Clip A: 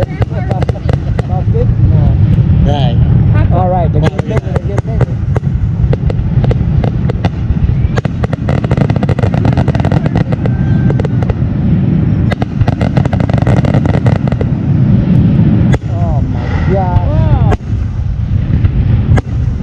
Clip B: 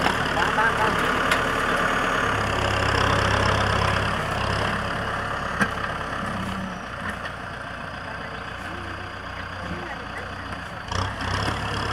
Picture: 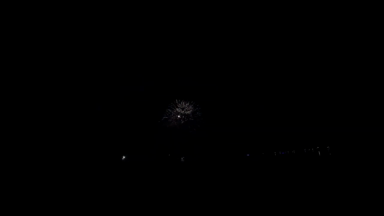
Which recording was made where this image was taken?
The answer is A